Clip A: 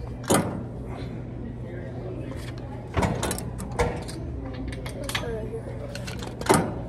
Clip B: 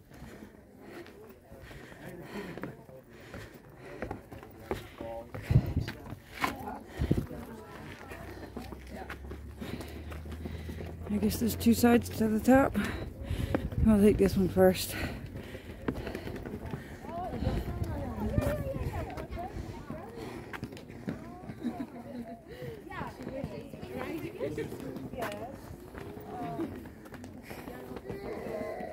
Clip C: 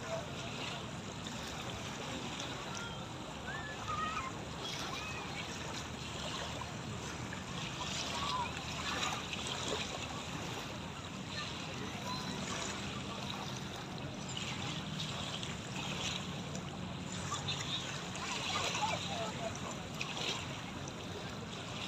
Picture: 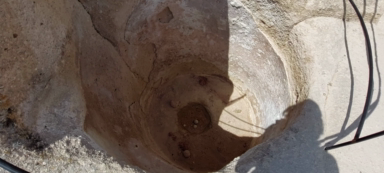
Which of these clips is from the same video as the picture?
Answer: B